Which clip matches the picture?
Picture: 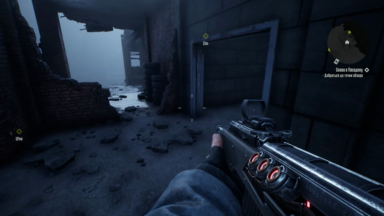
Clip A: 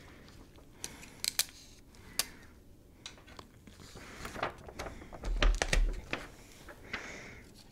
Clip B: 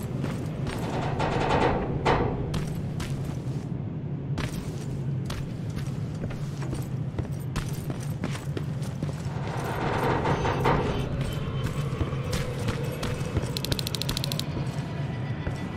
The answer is B